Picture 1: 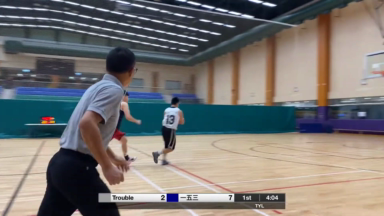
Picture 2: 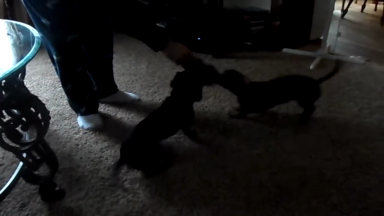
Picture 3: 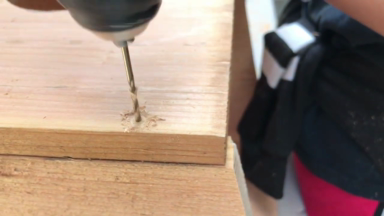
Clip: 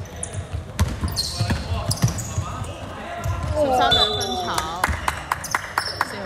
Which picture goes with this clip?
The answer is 1